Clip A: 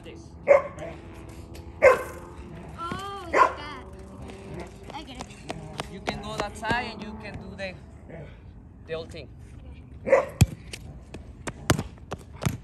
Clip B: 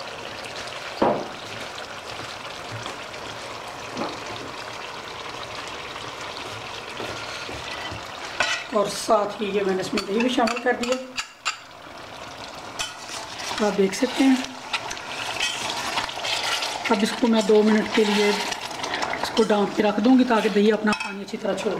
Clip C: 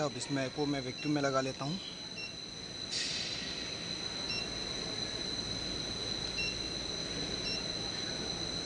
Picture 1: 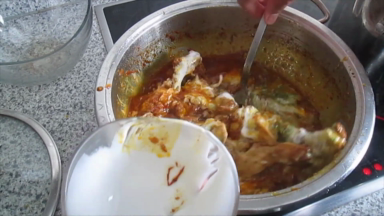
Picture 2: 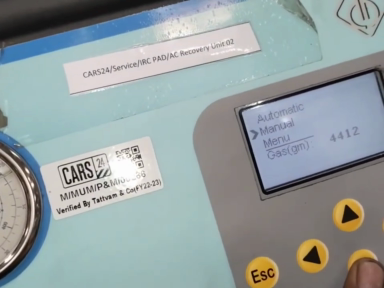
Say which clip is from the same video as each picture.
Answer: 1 B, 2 C